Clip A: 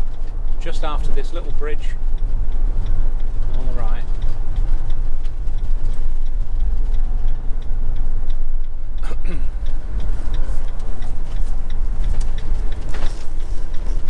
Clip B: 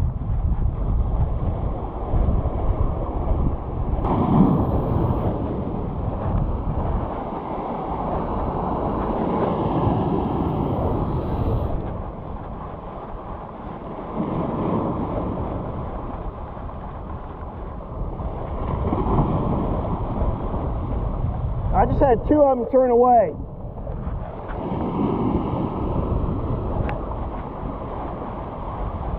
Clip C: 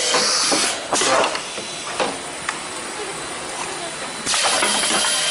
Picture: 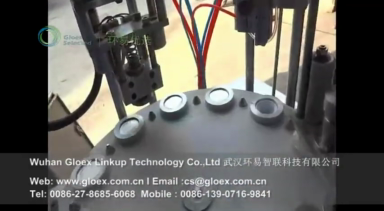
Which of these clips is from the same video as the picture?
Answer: C